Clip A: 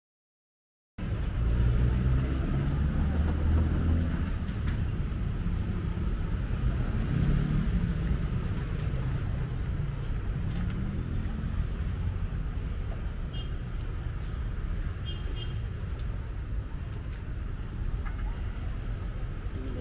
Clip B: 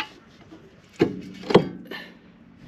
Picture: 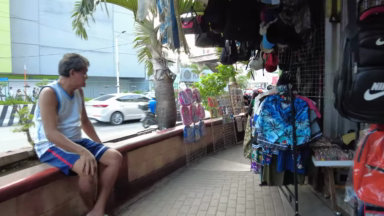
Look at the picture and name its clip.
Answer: A